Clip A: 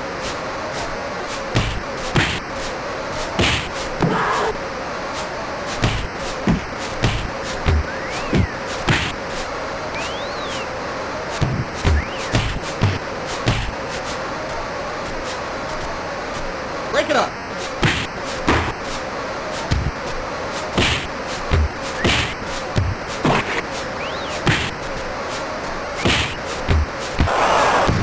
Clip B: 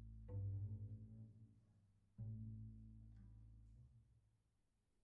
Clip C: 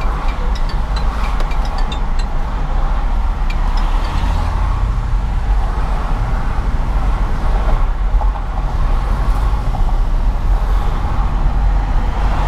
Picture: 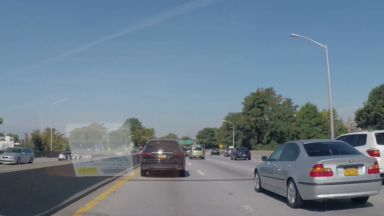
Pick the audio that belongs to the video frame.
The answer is C